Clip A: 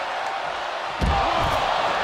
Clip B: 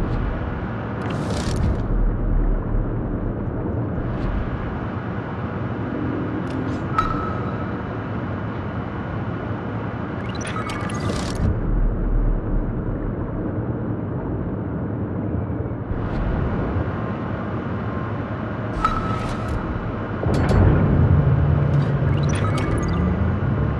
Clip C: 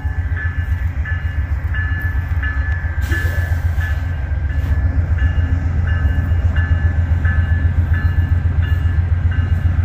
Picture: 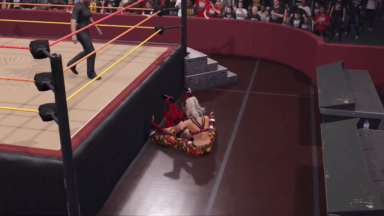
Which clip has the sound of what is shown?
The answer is A